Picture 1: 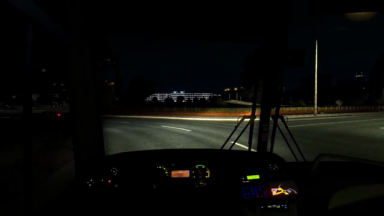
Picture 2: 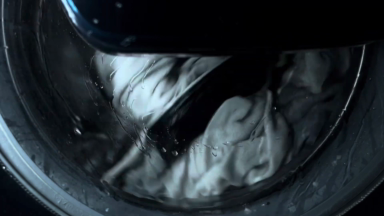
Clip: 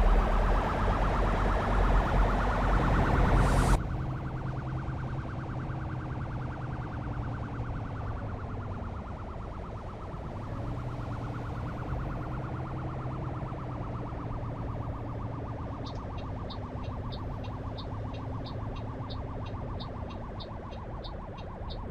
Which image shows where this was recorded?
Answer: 1